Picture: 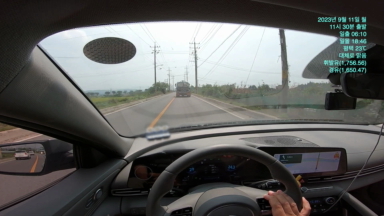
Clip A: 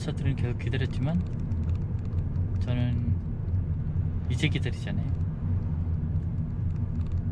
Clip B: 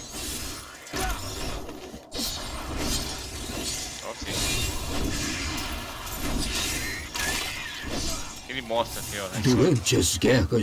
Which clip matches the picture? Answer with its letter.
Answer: A